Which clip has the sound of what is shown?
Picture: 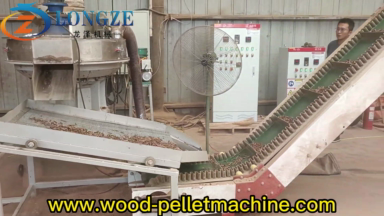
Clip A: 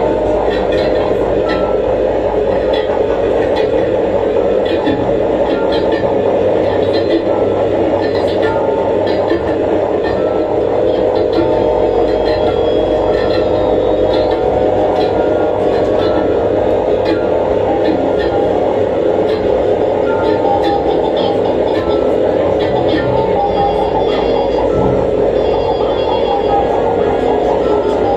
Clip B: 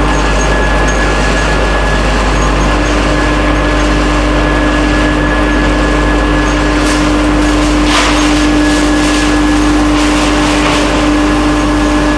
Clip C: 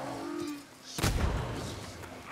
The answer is B